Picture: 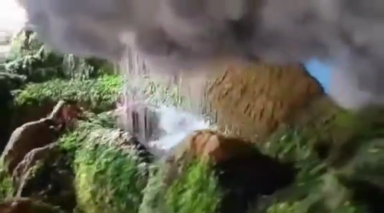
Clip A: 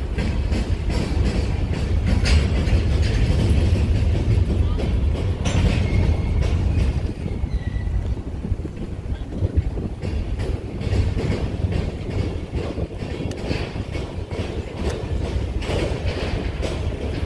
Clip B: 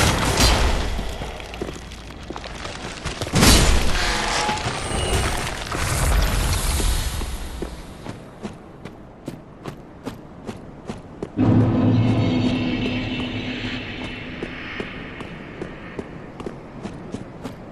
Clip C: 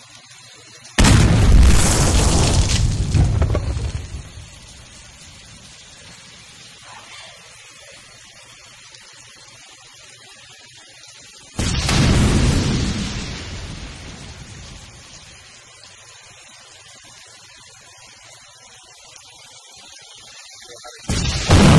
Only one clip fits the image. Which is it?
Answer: C